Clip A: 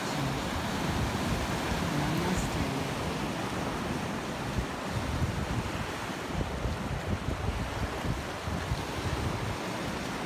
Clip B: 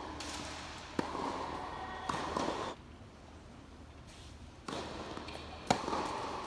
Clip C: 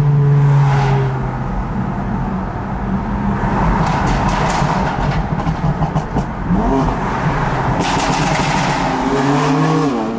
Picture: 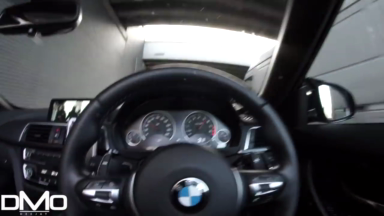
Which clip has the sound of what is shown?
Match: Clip C